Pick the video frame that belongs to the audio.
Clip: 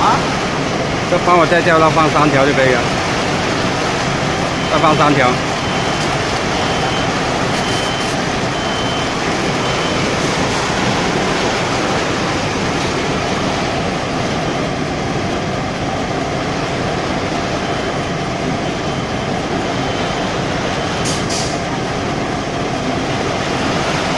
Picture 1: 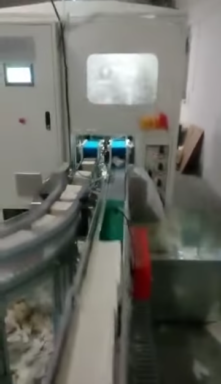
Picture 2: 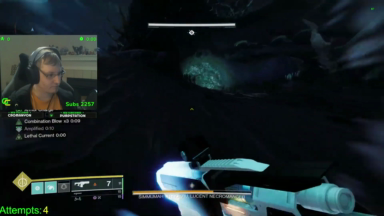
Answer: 1